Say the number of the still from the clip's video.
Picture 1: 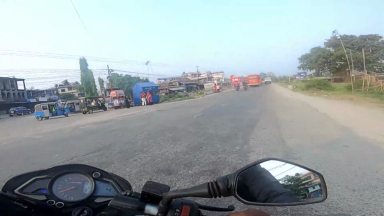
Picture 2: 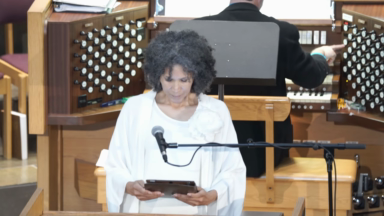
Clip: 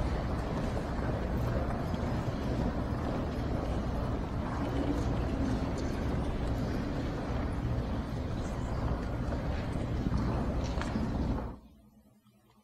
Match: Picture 2